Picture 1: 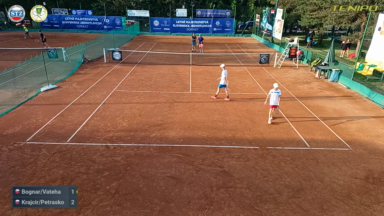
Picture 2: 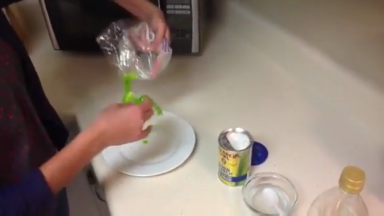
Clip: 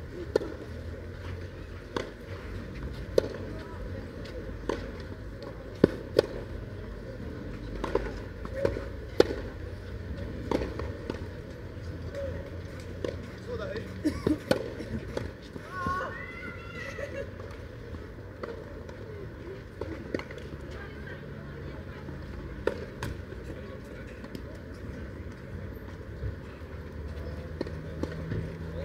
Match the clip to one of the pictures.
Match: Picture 1